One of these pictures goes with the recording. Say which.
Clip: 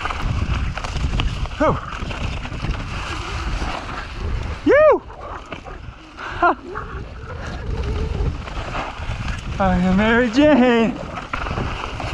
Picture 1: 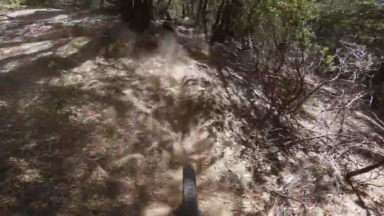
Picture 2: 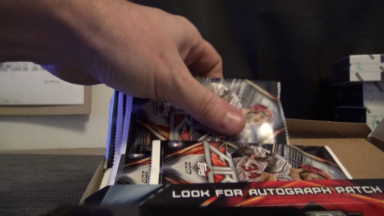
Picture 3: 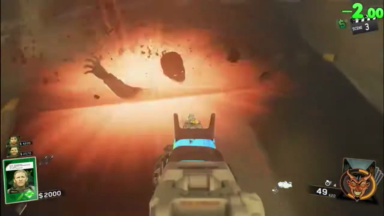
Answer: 1